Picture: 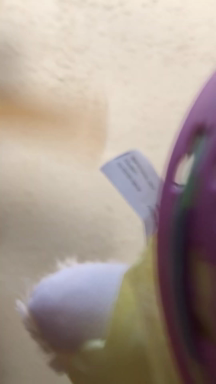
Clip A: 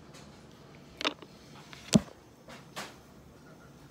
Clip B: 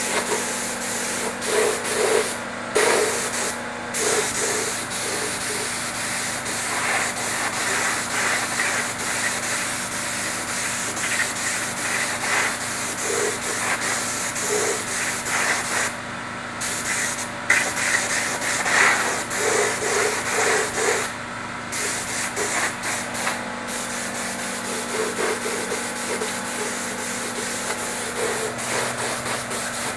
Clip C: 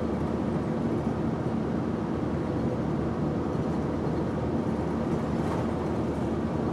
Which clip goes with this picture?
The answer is A